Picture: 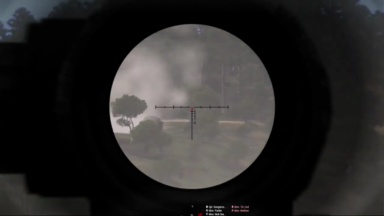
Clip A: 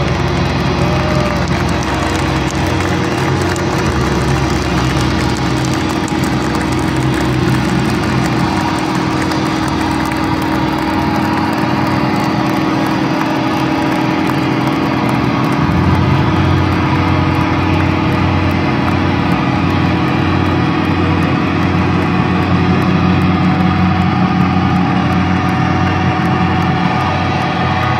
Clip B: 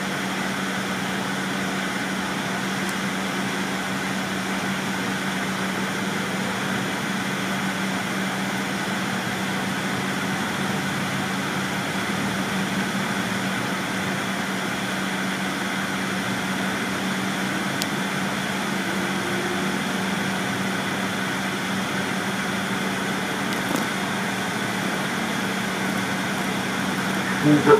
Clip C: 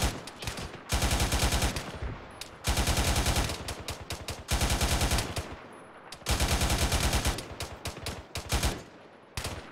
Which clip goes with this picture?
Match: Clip C